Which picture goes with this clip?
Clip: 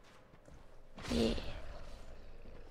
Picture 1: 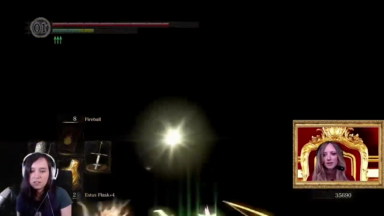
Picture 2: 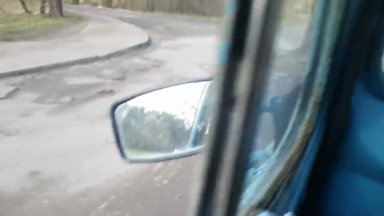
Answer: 1